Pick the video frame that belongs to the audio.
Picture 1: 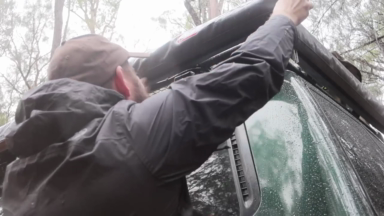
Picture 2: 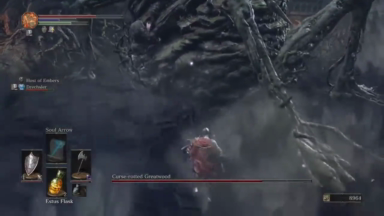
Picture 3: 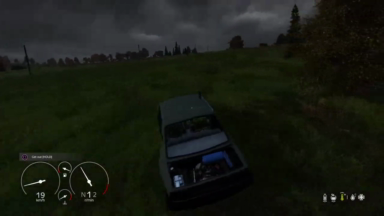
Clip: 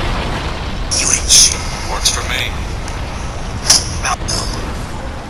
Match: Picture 2